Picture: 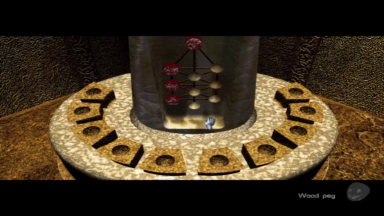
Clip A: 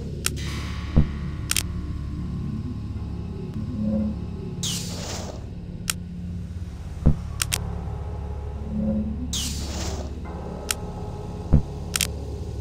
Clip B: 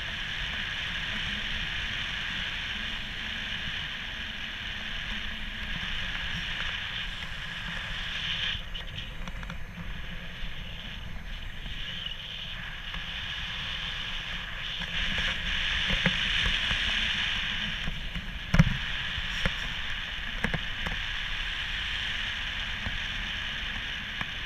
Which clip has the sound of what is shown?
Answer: A